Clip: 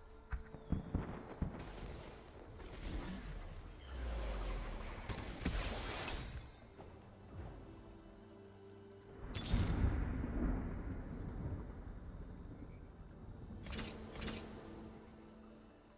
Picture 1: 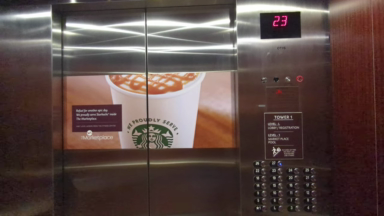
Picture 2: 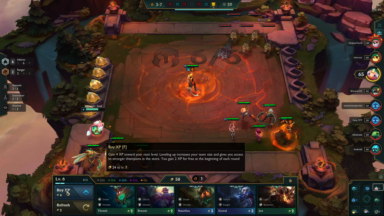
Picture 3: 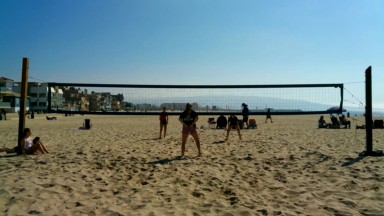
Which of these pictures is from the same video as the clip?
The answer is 2